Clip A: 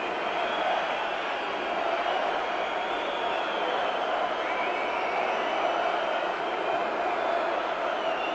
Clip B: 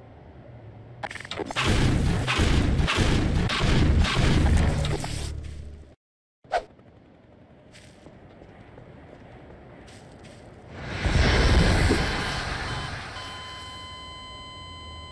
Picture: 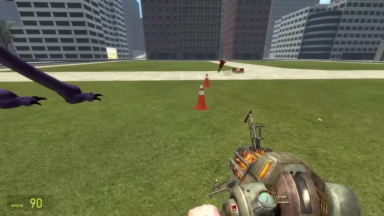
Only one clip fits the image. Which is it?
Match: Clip B